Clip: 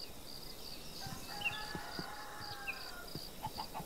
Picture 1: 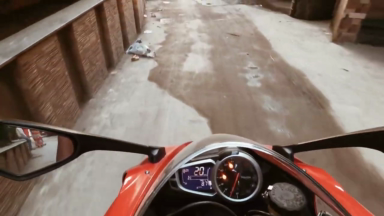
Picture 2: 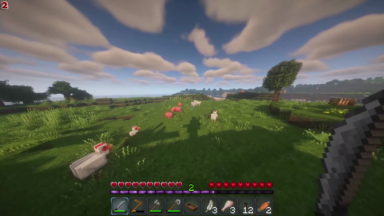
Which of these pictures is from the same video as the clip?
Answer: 2